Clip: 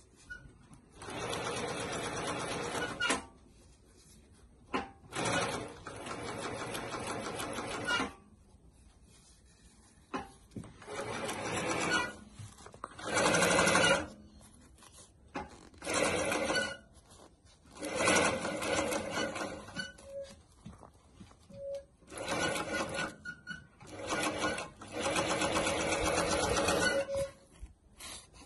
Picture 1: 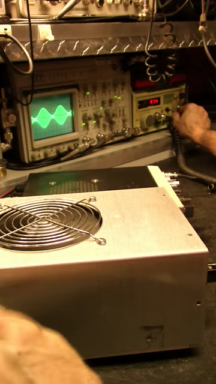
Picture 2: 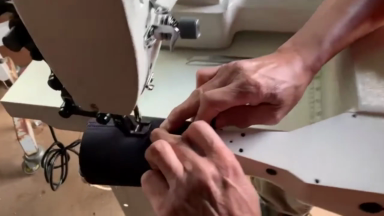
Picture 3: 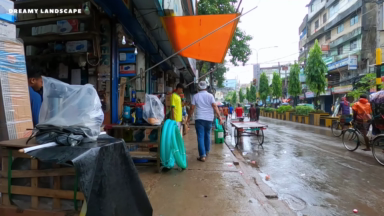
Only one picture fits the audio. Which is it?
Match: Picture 2